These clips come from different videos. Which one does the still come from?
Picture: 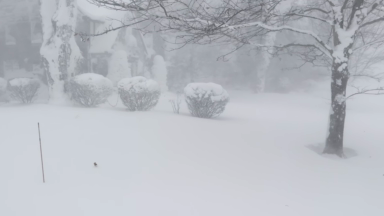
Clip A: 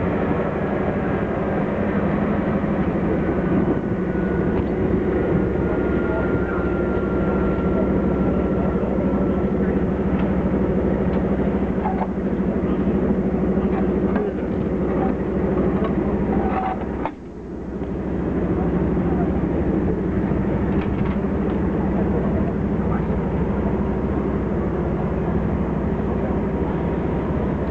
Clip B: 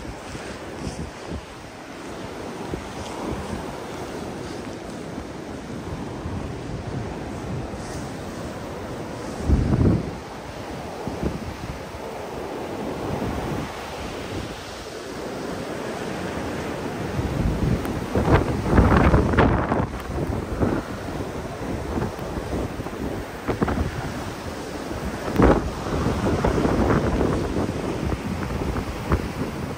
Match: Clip B